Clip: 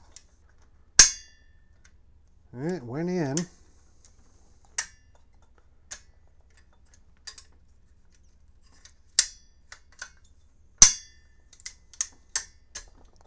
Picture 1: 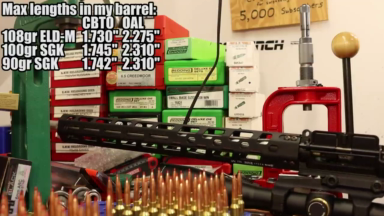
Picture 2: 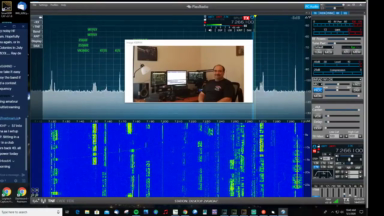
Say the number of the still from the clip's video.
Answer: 1